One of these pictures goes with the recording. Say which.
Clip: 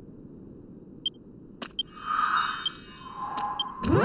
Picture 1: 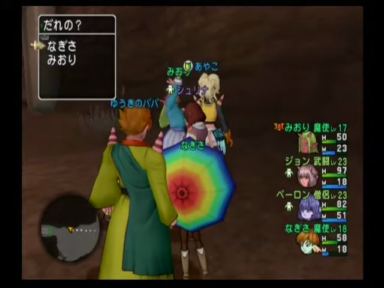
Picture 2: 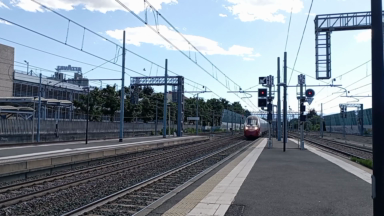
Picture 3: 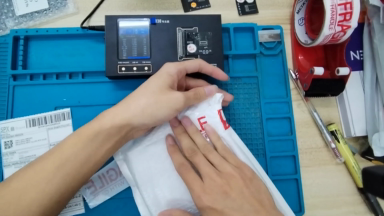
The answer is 1